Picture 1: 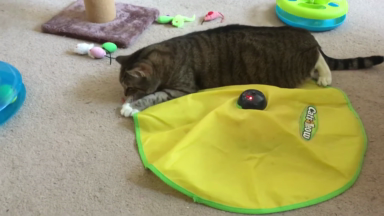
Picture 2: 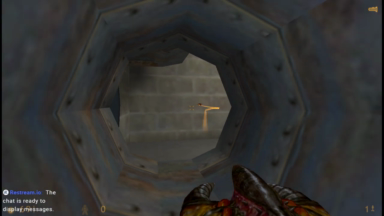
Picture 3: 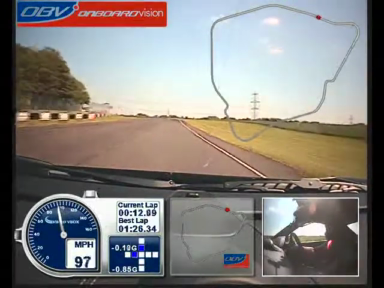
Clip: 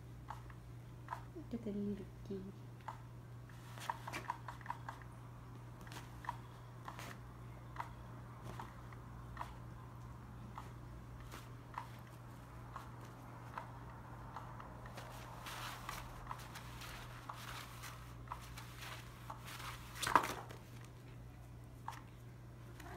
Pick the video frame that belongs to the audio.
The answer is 1